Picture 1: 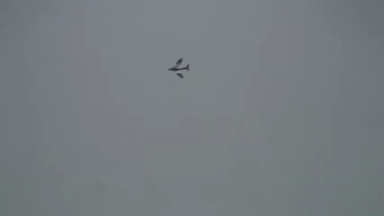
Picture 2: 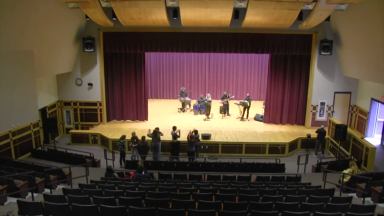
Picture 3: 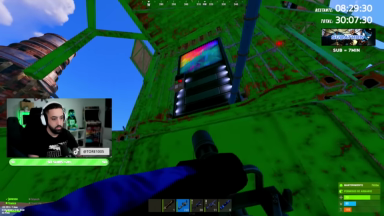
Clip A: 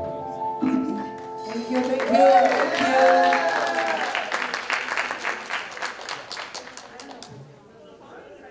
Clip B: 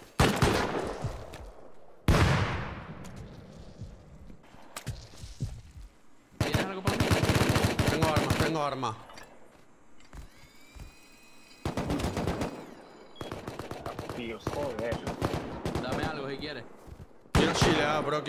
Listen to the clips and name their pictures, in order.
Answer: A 2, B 3